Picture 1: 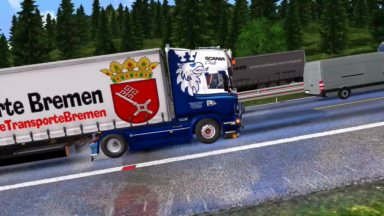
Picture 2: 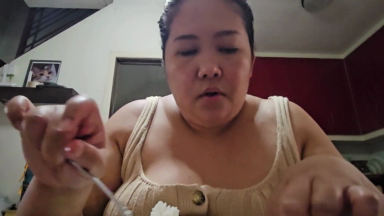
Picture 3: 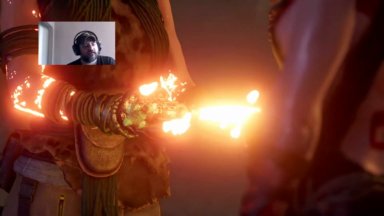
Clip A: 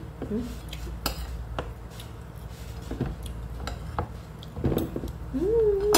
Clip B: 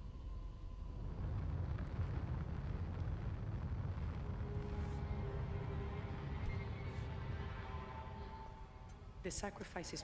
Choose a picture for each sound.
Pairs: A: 2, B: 3